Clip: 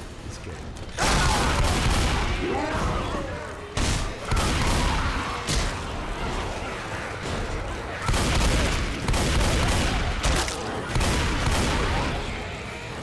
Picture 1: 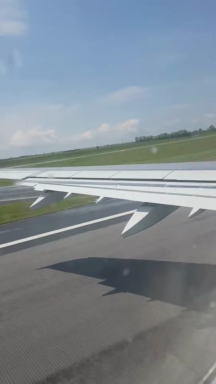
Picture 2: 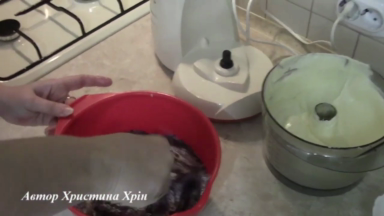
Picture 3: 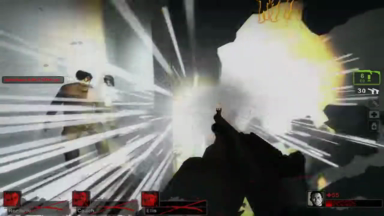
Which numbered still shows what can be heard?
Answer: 3